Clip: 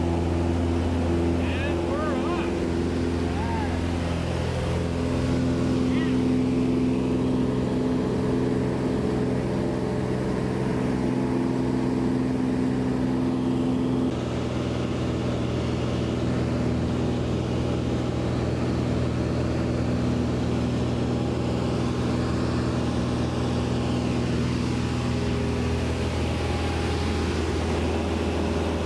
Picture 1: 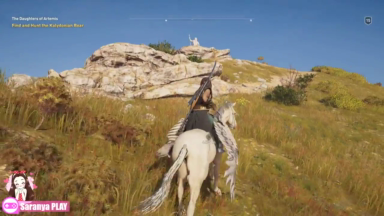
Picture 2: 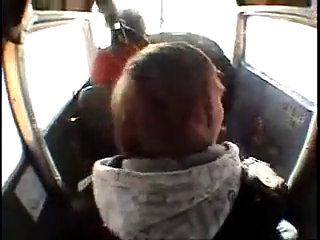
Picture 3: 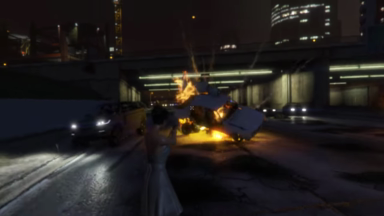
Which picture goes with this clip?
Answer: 2